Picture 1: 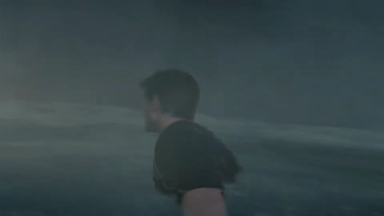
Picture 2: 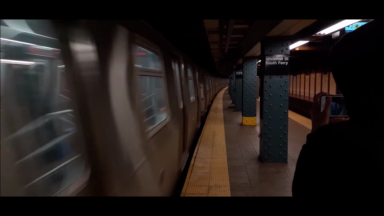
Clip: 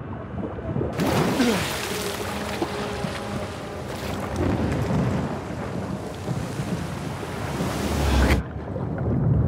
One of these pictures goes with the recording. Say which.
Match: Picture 1